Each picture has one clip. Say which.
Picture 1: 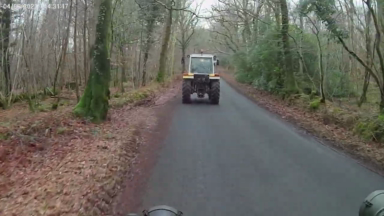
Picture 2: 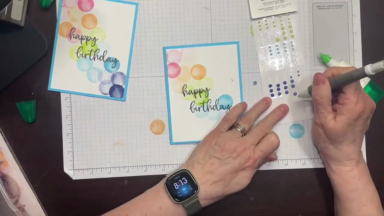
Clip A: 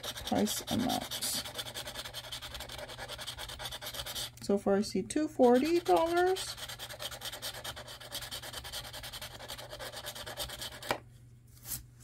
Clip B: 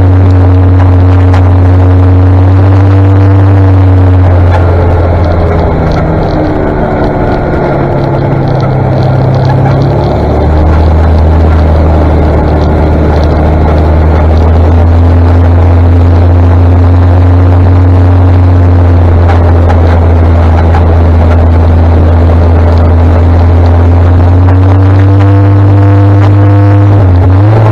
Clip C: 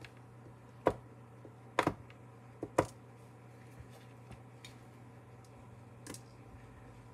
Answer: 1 B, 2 C